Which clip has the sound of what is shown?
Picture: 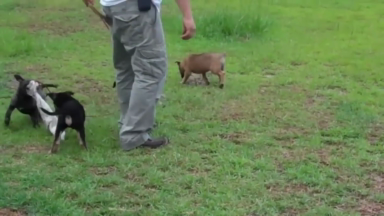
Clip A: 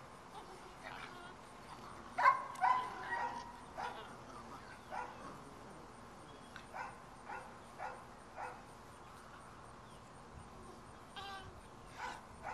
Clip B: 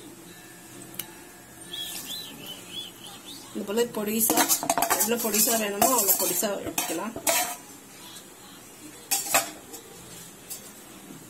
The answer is A